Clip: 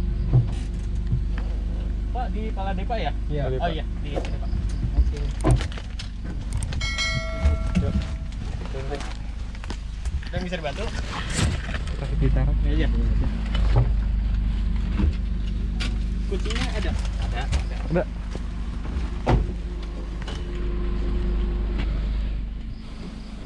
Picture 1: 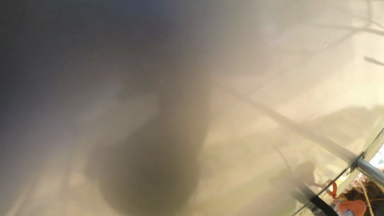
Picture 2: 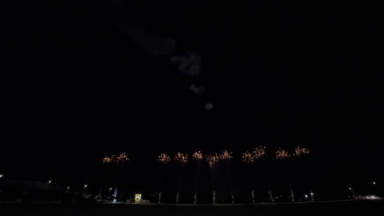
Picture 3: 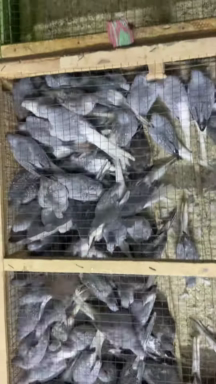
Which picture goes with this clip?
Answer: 1